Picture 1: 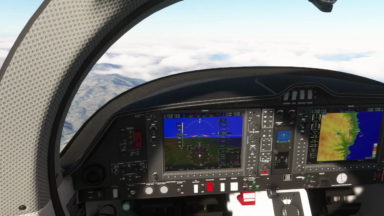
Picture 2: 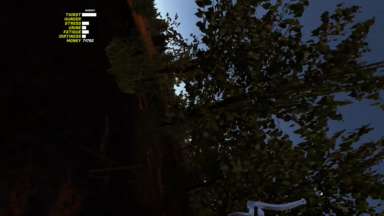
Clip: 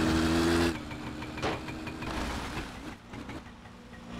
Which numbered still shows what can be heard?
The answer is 2